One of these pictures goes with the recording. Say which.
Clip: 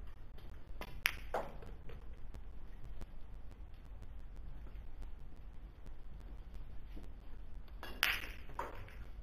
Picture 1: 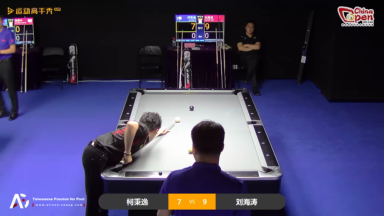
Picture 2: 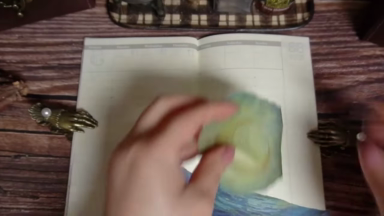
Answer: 1